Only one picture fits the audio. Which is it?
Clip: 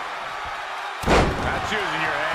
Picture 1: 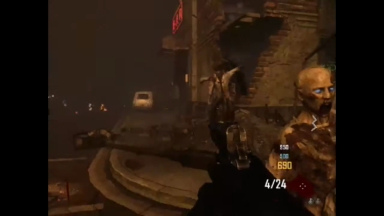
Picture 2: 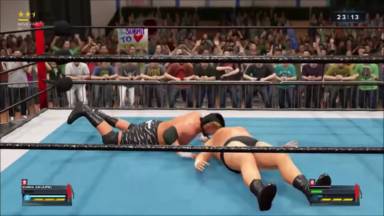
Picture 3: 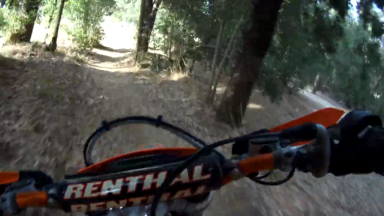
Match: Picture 2